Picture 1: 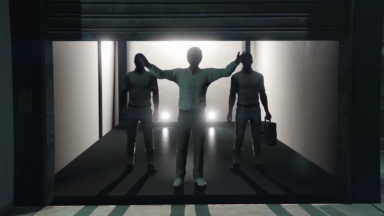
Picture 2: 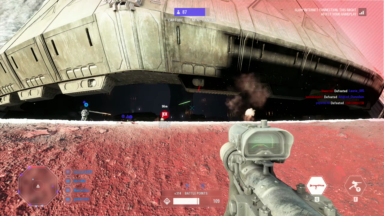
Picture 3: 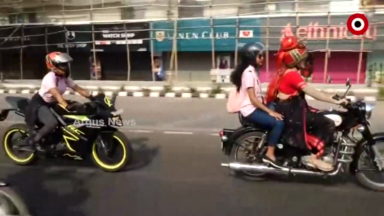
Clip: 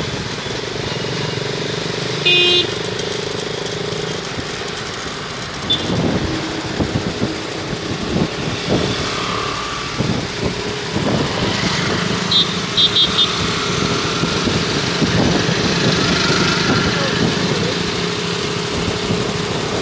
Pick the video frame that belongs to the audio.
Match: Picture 3